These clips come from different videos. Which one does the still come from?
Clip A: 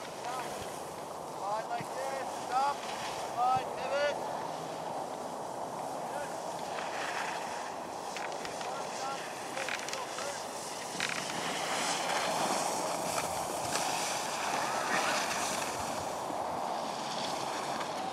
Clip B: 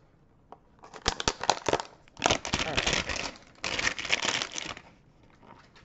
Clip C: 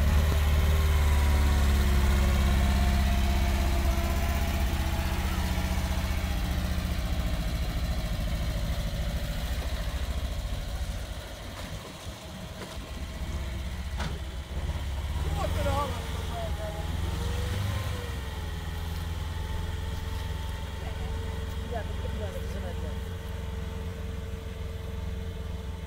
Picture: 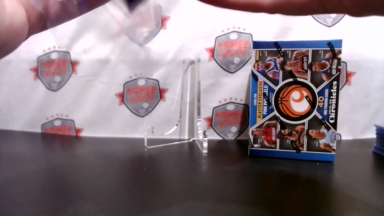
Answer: B